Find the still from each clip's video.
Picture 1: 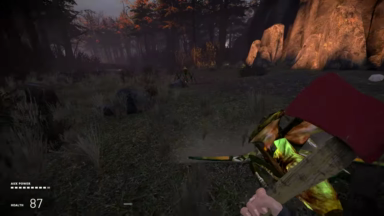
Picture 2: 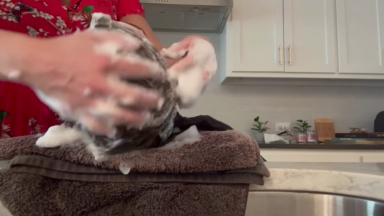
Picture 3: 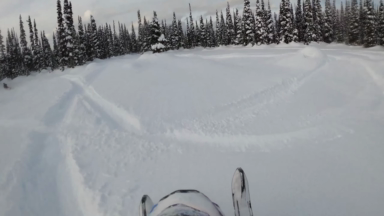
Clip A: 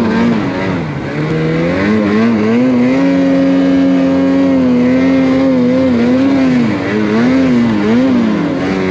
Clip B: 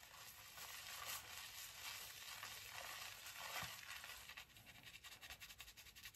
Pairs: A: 3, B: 2